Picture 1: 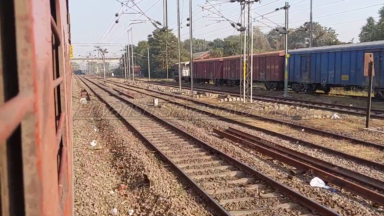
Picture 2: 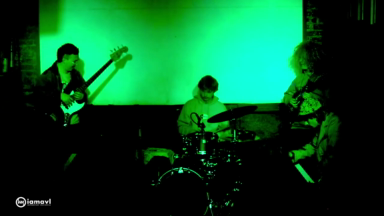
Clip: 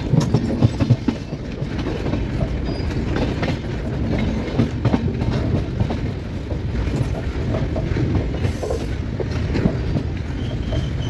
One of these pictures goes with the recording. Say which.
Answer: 1